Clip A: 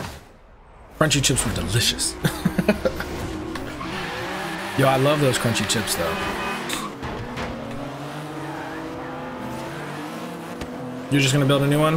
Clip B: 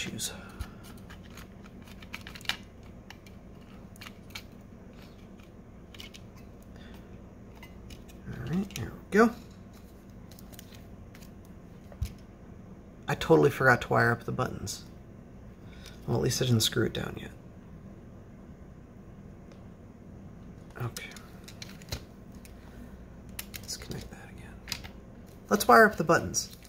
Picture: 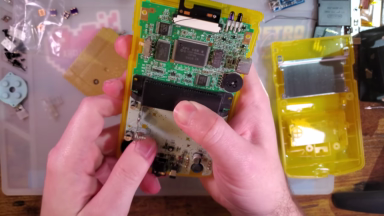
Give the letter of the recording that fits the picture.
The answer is B